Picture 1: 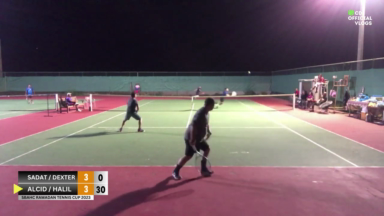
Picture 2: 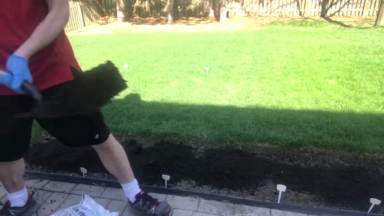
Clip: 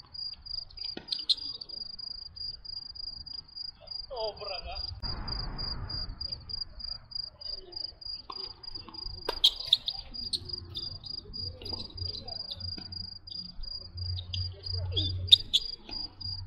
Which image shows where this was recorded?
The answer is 1